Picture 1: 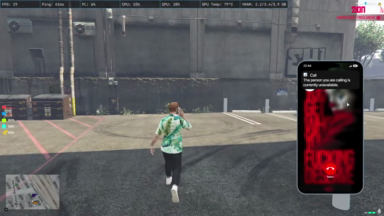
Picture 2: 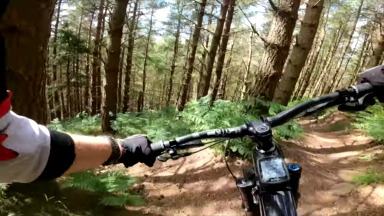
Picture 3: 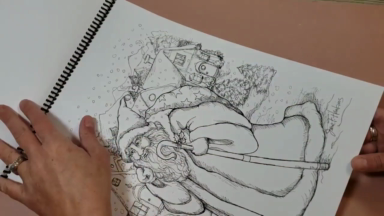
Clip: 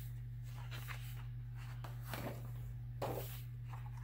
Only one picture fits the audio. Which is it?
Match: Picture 3